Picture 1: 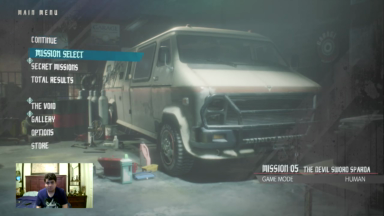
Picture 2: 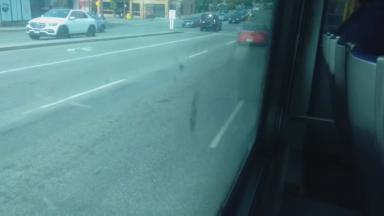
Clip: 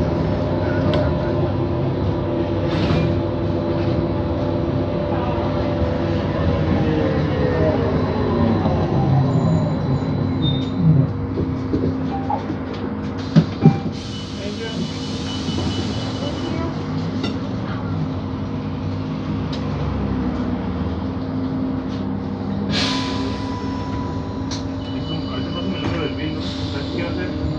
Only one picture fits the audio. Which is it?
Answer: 2